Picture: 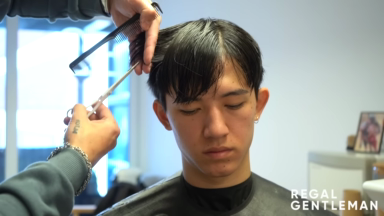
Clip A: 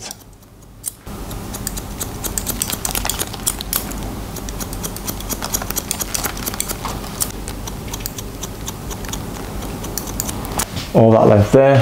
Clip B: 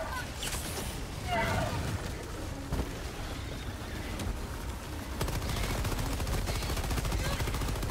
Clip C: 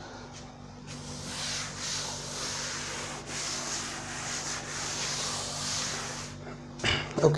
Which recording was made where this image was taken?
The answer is A